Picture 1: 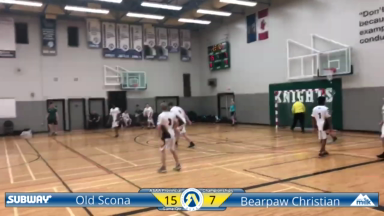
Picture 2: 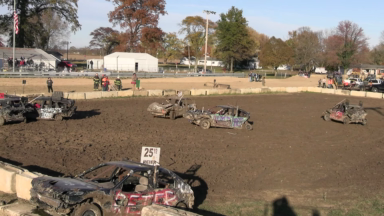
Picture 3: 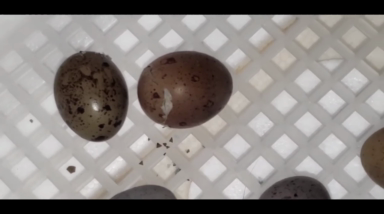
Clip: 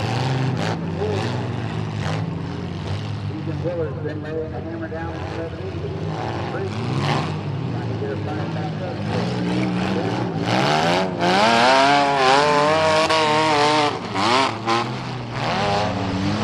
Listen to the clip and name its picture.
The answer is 2